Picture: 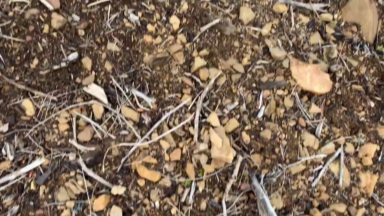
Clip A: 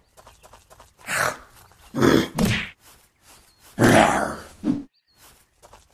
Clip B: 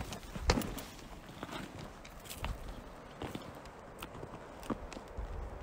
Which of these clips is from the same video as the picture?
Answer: B